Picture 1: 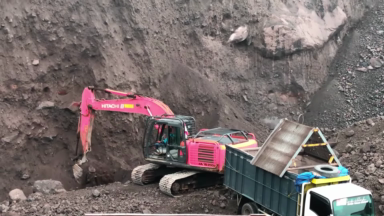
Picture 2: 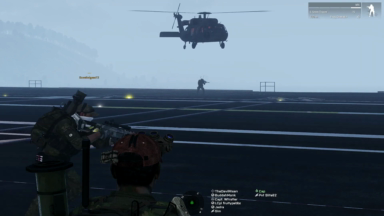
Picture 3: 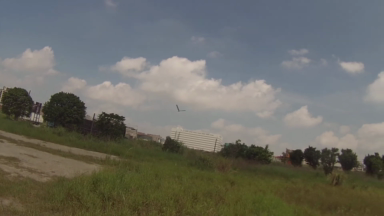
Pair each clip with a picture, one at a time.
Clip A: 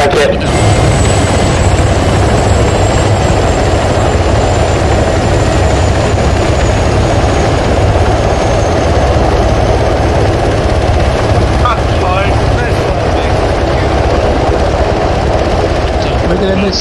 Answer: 2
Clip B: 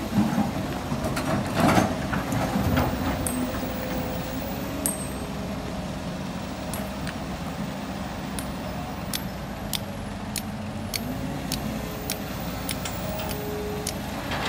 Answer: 1